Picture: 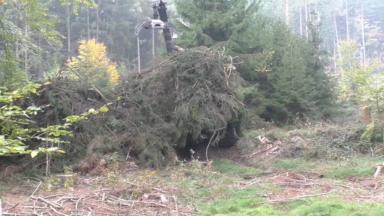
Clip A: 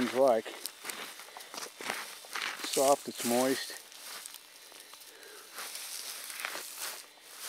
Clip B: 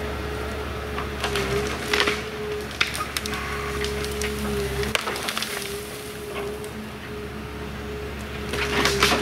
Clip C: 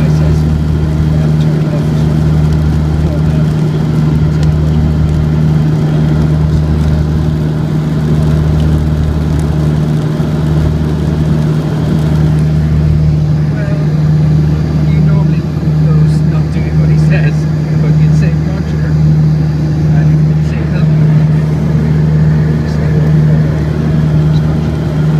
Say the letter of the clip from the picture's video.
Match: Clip B